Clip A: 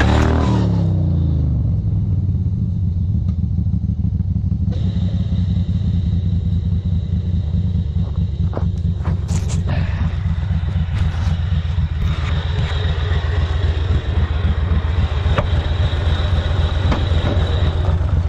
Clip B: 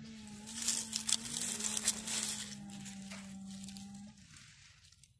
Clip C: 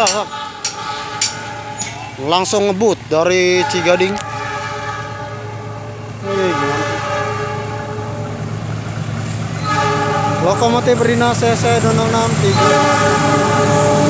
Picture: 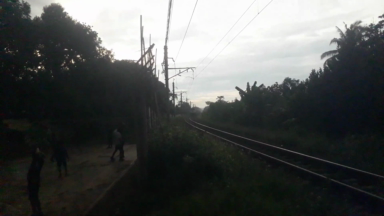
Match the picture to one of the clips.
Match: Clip C